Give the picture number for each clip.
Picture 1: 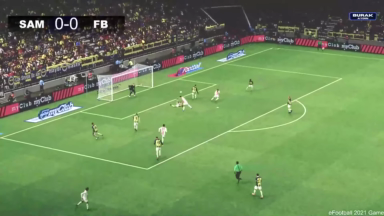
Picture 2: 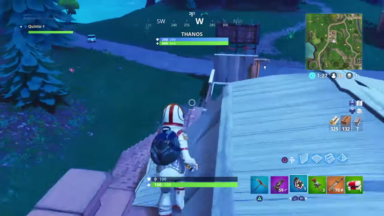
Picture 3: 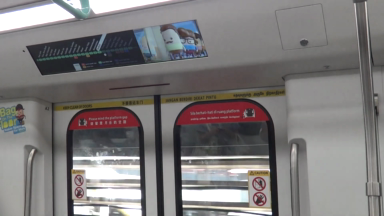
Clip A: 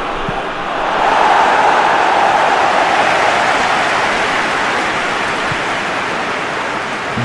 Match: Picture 1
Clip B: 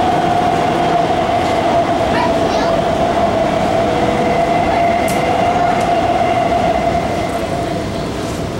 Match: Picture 3